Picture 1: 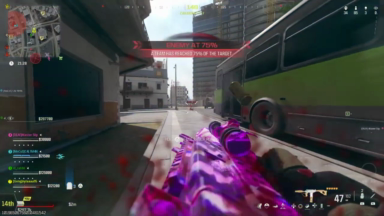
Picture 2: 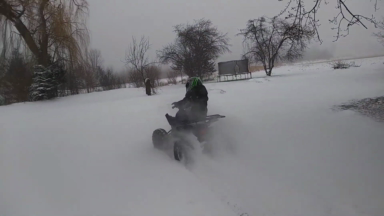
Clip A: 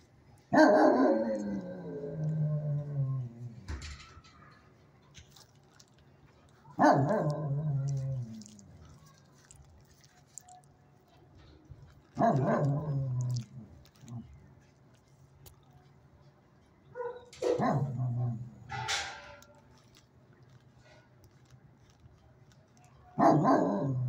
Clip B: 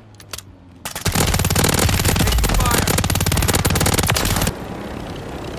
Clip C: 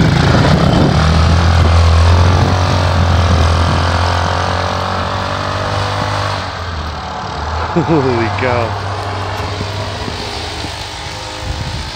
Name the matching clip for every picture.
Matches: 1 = B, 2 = C